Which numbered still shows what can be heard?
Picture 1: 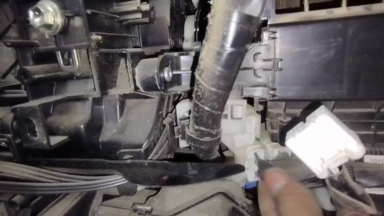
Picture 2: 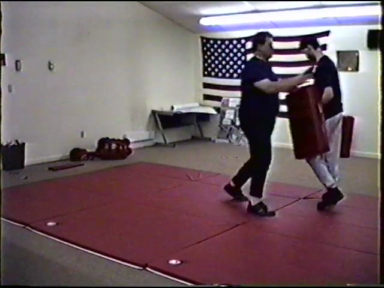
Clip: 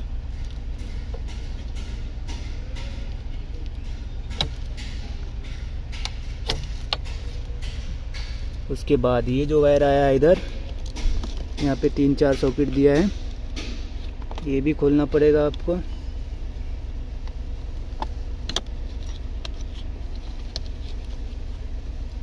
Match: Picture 1